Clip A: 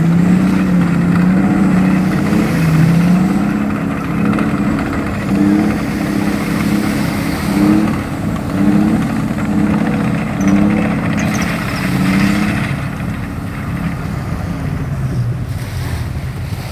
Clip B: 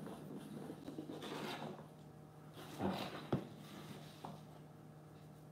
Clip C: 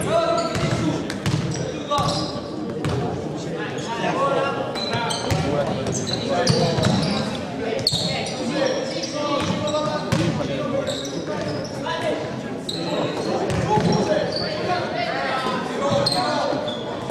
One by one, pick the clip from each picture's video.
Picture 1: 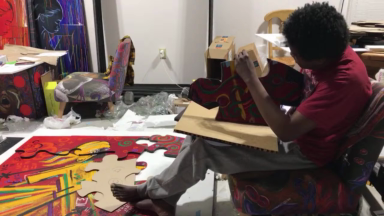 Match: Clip B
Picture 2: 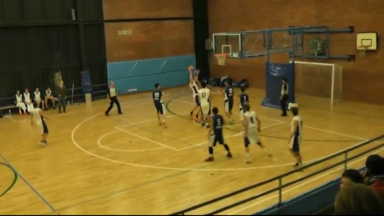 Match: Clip C